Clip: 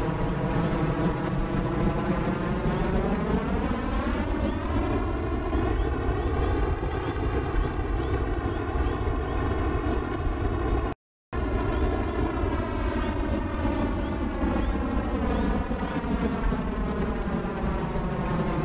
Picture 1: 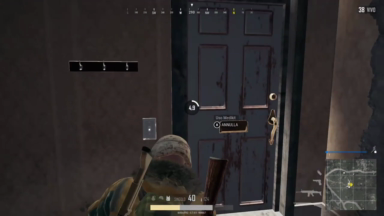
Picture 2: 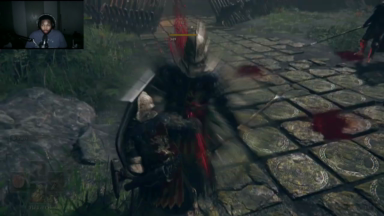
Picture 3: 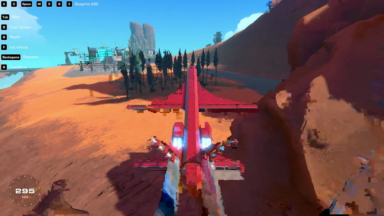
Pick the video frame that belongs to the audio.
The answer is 3